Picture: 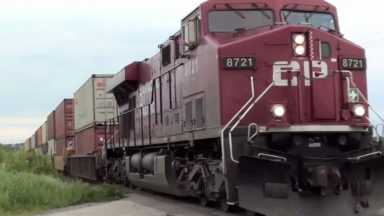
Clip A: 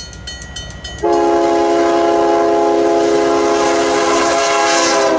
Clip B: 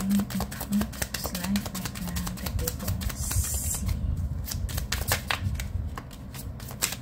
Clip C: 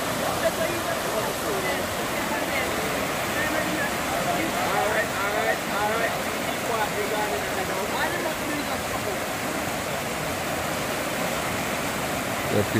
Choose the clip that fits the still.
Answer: A